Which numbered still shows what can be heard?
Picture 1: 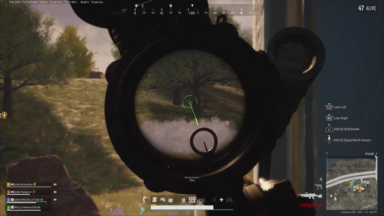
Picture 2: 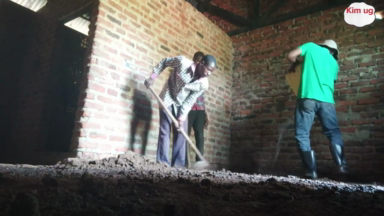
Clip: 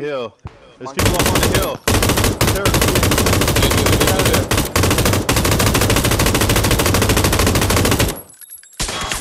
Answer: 1